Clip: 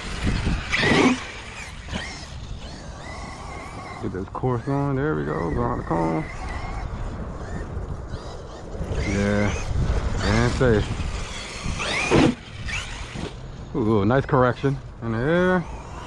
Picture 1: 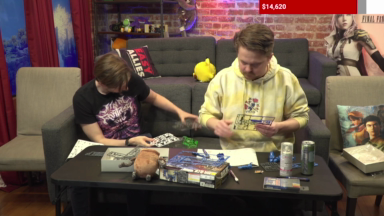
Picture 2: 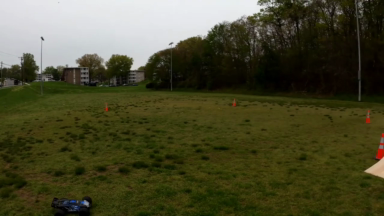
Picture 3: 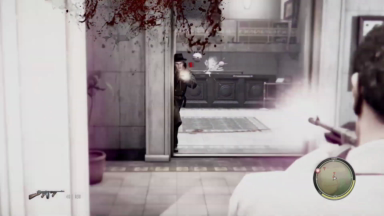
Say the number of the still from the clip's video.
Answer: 2